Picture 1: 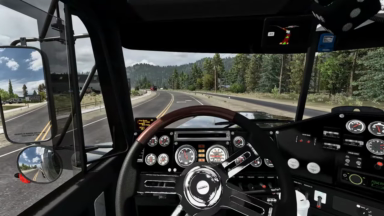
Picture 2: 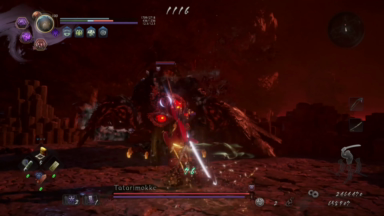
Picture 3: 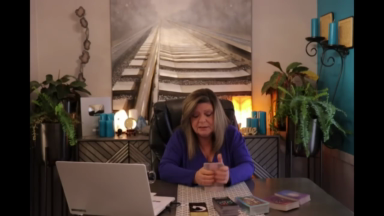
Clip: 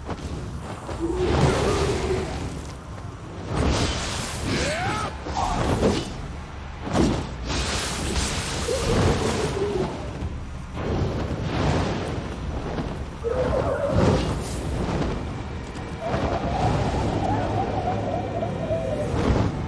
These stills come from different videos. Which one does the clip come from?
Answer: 2